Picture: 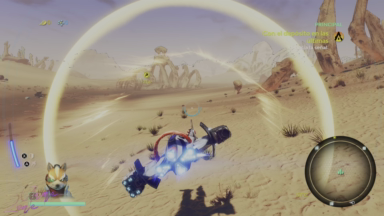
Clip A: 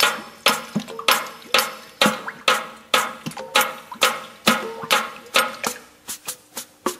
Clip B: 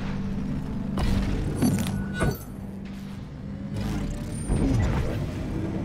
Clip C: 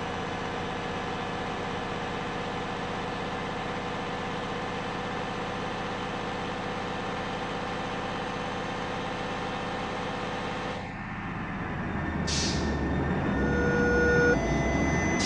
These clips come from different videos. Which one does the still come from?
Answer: B